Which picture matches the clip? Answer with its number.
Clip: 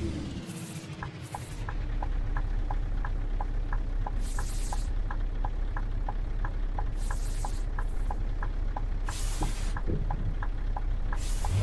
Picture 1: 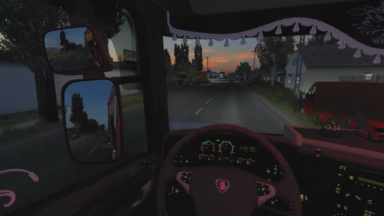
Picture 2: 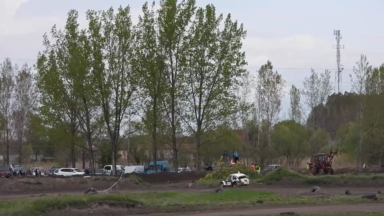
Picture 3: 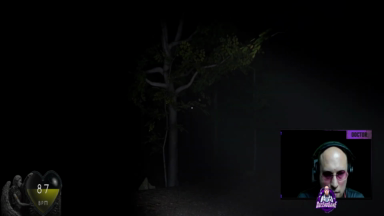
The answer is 1